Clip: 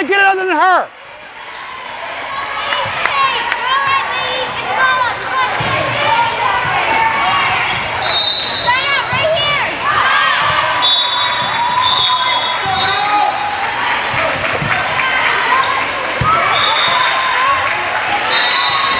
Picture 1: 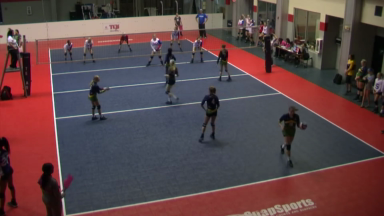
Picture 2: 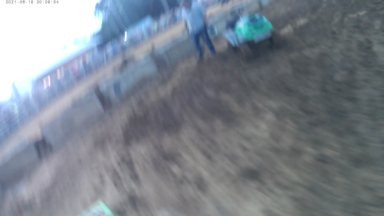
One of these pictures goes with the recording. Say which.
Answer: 1